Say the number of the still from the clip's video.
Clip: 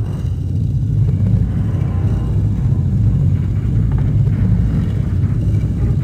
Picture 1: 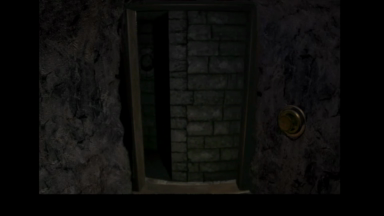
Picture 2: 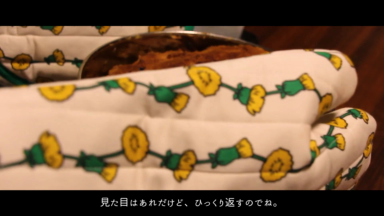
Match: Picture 1